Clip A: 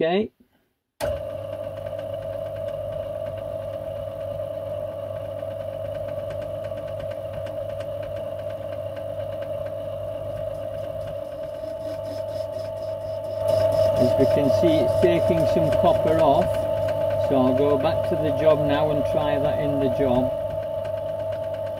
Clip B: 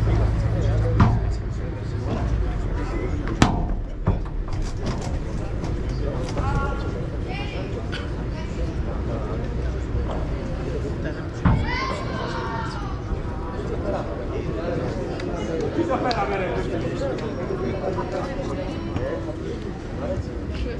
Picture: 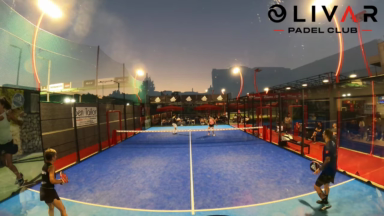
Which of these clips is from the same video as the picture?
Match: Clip B